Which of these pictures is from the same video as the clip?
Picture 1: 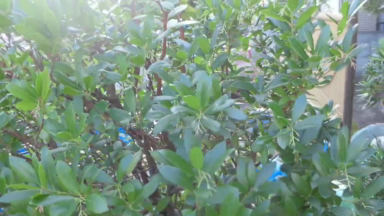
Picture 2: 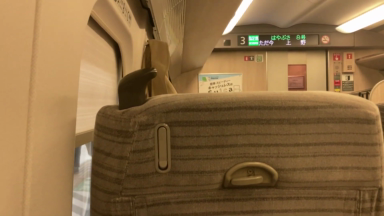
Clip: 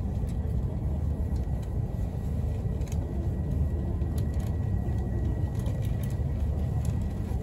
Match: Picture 2